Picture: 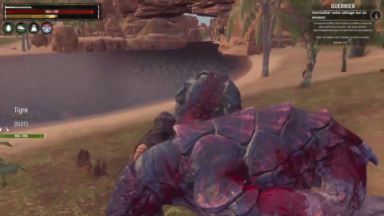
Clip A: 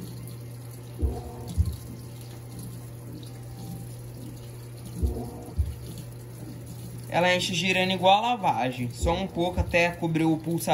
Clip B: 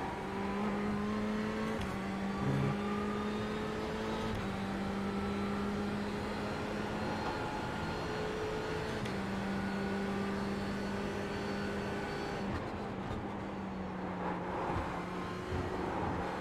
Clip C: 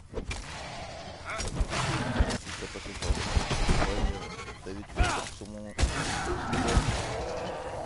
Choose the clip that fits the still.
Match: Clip C